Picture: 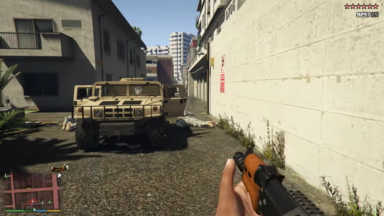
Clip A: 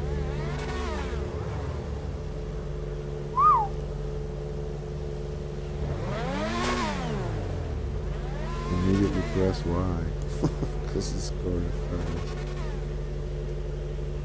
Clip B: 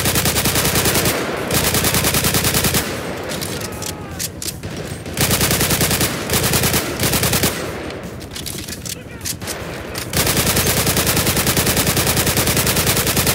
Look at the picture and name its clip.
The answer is B